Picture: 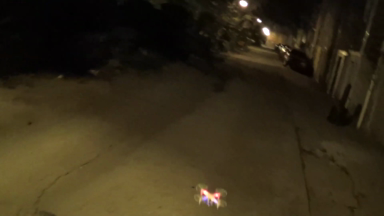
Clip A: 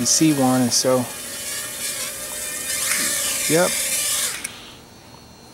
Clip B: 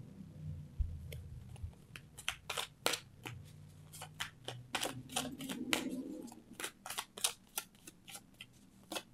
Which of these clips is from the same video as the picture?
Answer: A